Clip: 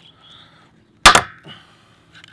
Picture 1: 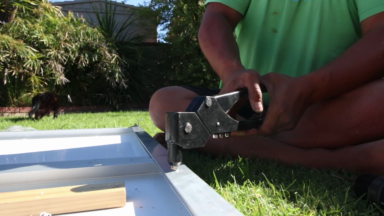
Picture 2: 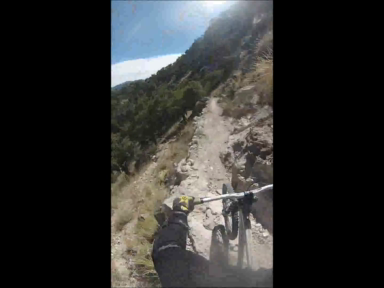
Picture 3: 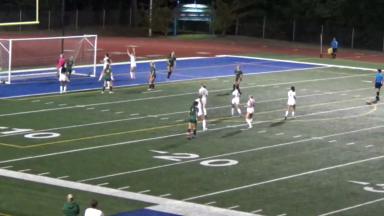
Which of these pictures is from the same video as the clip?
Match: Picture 1